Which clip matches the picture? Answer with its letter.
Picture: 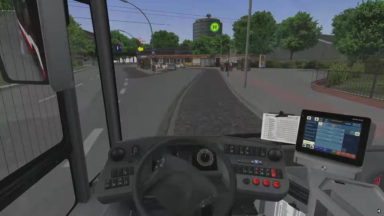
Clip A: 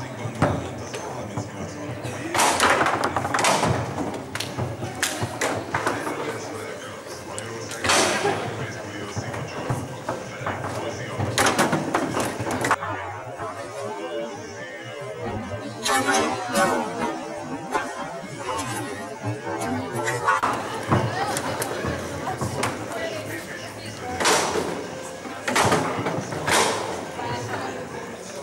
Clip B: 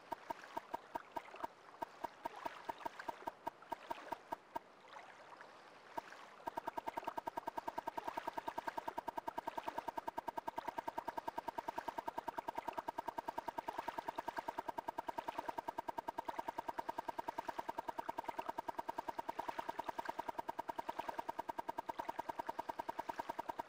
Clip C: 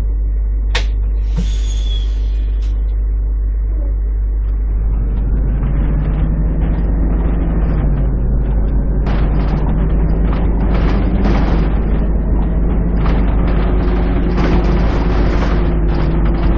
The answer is C